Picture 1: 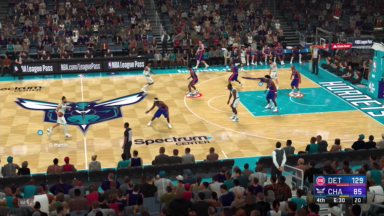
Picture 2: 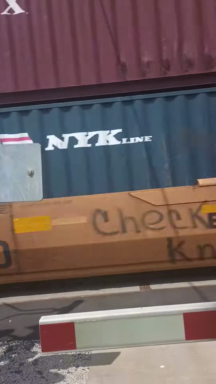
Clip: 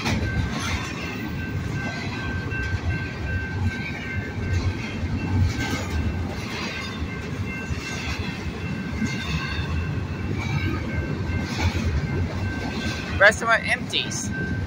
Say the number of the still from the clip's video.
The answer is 2